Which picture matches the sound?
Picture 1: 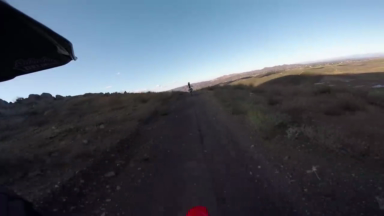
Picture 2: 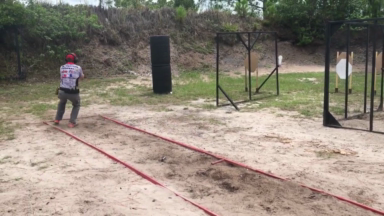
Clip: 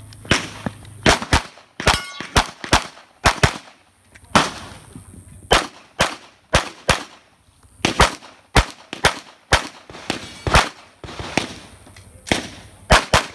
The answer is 2